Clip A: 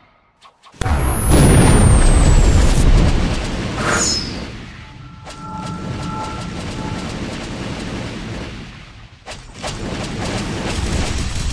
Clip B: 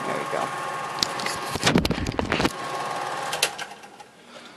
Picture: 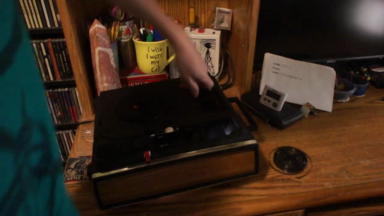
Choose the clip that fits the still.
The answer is B